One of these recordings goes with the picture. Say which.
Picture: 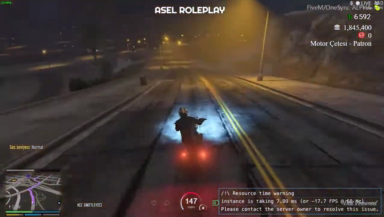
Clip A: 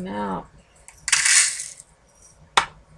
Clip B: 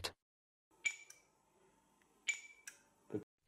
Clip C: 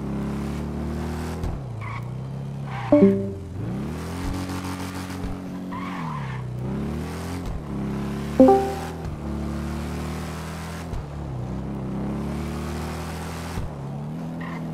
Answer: C